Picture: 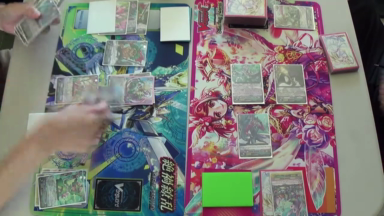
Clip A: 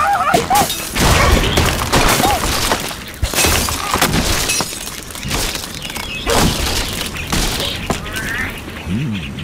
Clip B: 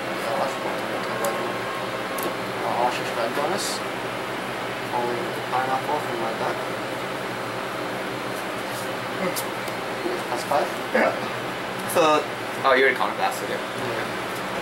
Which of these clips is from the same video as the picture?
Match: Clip B